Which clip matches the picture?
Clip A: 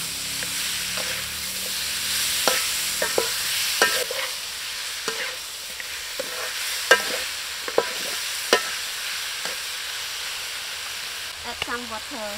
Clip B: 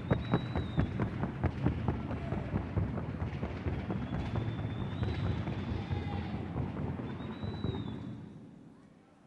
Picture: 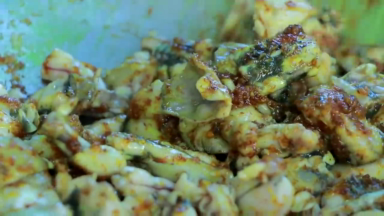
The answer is A